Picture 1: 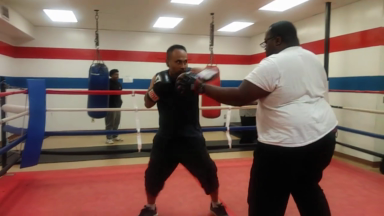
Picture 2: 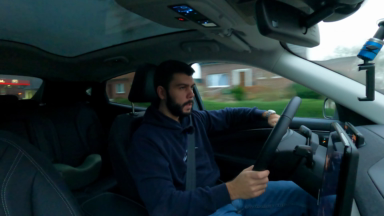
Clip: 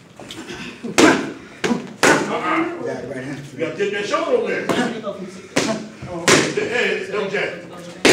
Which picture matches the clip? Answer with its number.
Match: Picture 1